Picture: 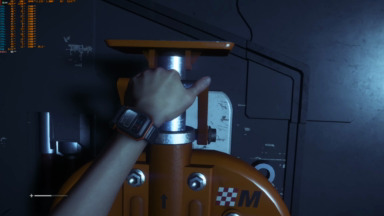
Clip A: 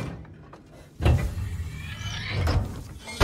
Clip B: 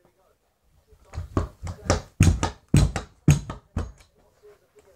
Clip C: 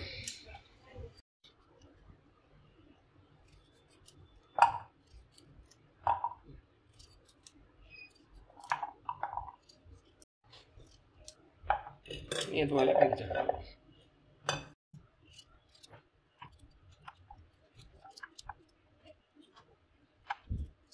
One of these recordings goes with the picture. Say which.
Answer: A